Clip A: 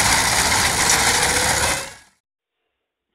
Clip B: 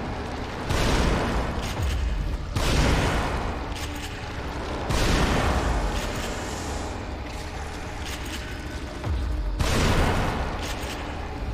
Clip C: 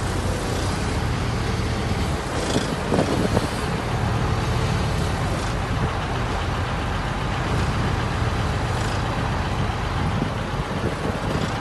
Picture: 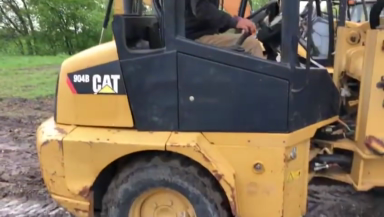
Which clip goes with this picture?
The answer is C